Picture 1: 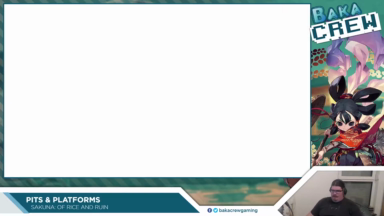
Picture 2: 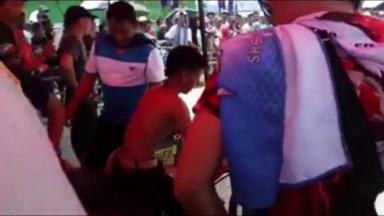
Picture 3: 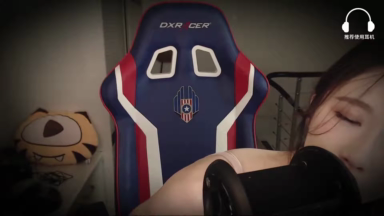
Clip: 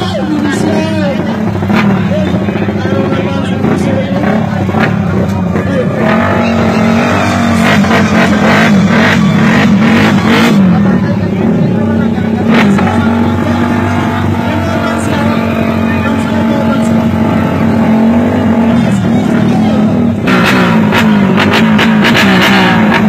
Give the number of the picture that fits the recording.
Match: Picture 2